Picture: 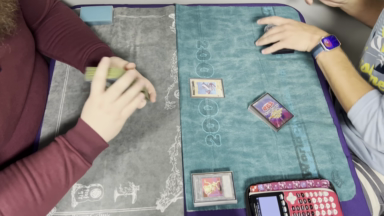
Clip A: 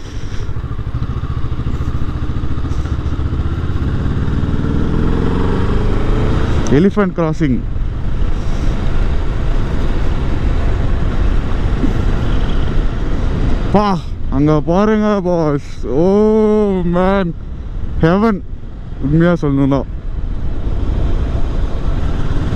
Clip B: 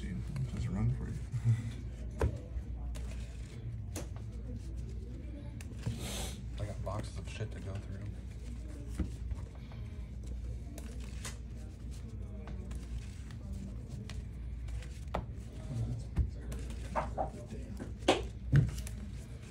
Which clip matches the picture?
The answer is B